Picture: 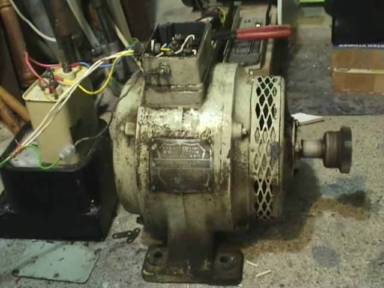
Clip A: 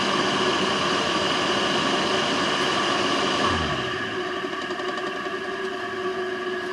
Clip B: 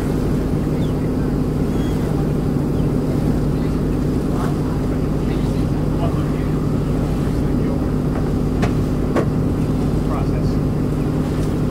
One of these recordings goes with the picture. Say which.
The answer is A